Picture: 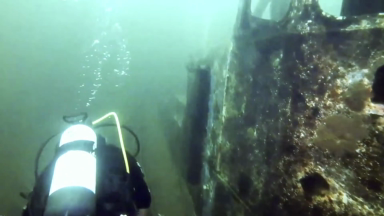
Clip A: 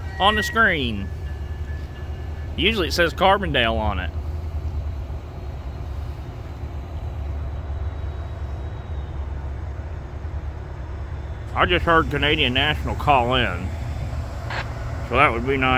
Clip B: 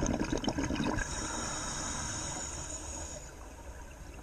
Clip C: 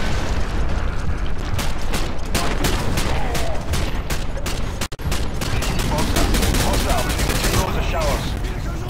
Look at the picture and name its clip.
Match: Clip B